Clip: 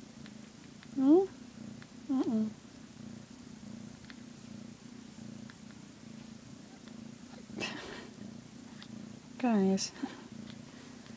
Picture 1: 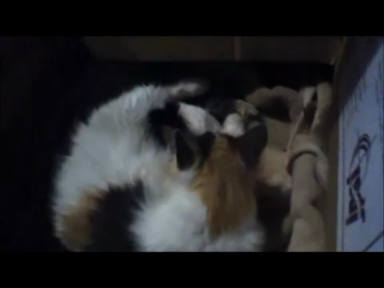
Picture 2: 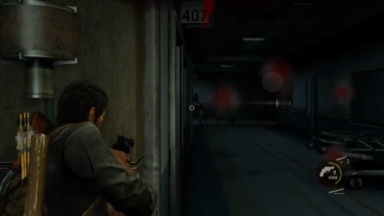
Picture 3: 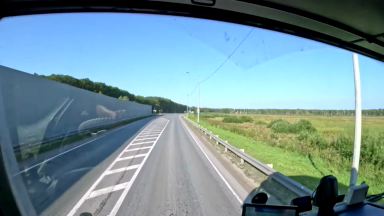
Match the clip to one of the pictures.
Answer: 1